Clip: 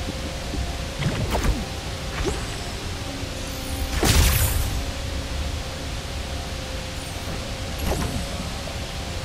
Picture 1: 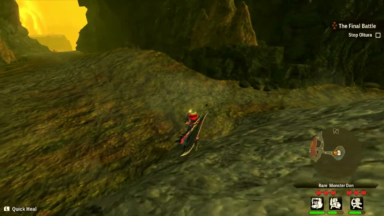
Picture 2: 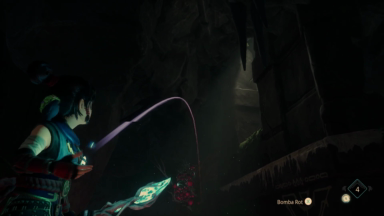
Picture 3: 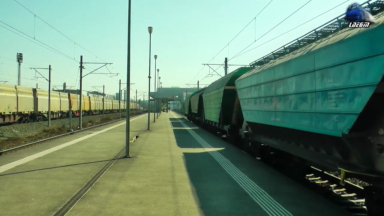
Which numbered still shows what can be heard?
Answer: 2